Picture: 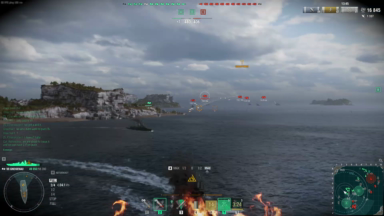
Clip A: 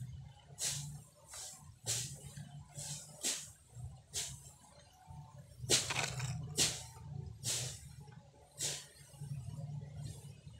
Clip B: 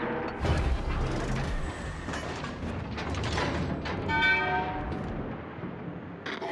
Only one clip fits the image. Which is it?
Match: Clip B